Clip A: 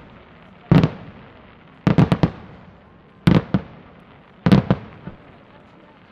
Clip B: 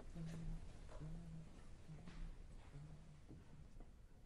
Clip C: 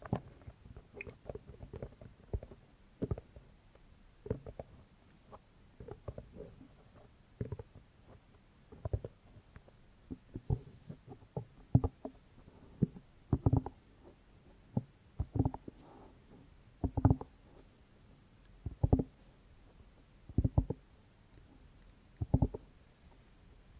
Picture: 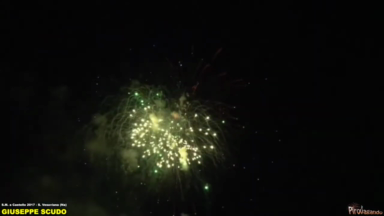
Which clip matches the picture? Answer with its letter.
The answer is A